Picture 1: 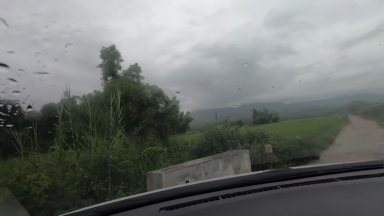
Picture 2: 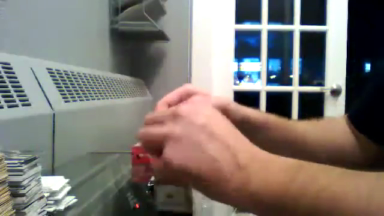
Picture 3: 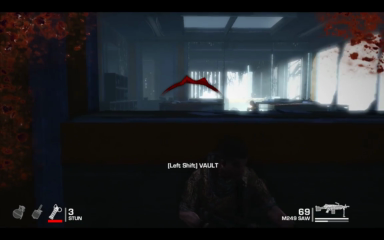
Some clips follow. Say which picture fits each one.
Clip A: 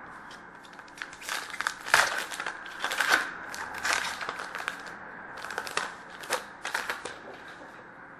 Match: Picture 2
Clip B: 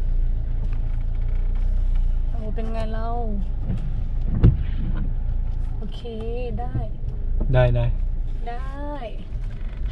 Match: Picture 1